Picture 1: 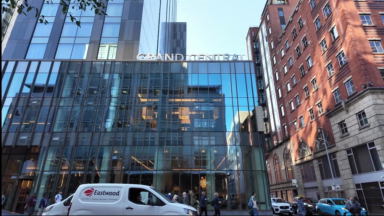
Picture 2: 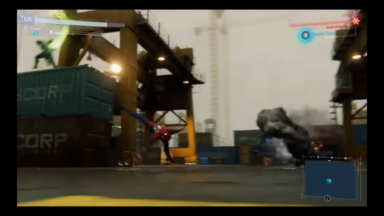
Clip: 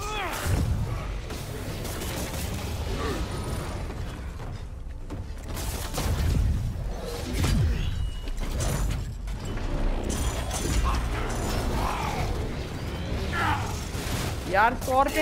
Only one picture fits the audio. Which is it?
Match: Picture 2